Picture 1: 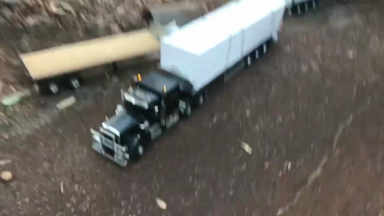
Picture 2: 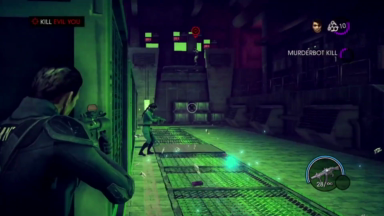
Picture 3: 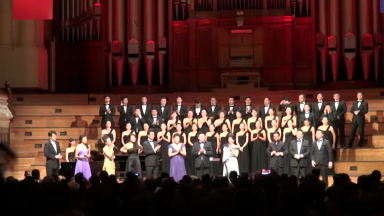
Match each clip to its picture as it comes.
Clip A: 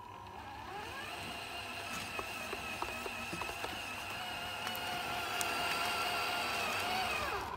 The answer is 1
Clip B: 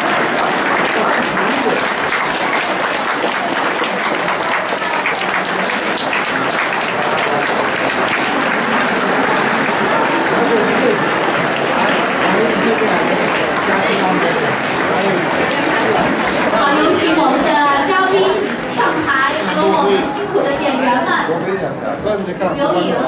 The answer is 3